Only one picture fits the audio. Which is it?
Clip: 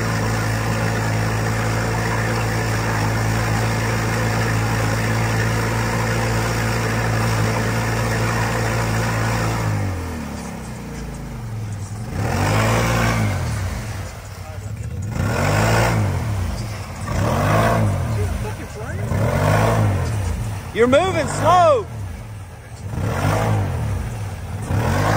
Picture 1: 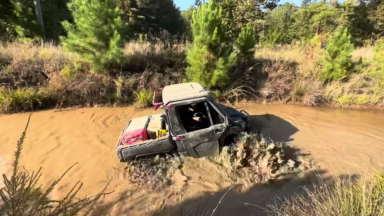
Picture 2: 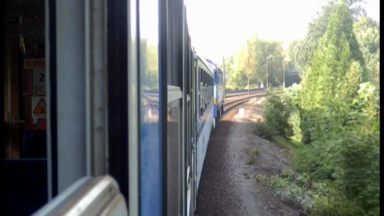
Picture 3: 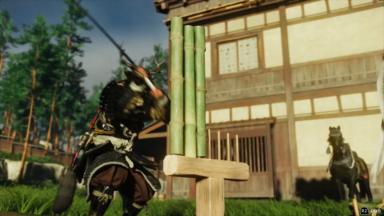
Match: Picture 1